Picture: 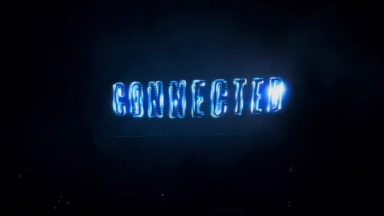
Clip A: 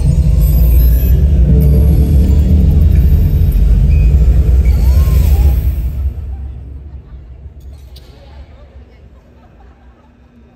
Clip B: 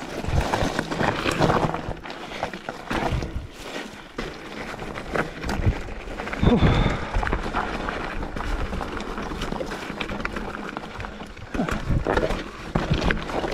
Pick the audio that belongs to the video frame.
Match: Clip A